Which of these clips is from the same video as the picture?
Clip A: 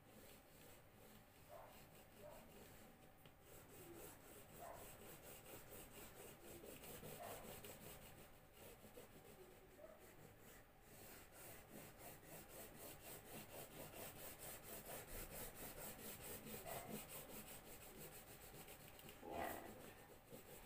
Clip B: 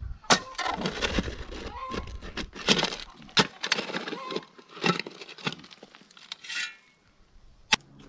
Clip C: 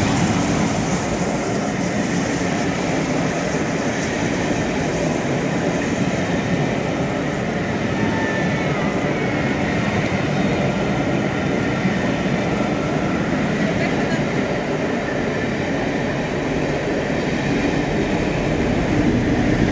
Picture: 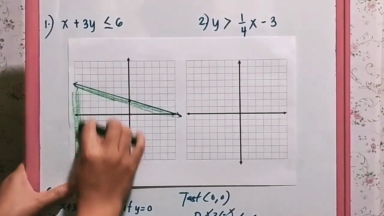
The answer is A